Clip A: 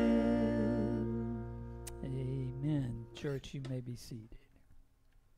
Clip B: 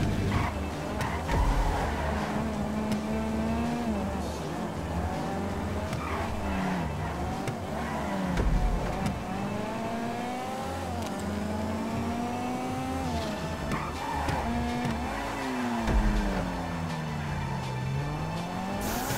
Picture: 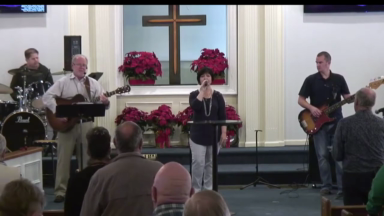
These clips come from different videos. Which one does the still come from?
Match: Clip A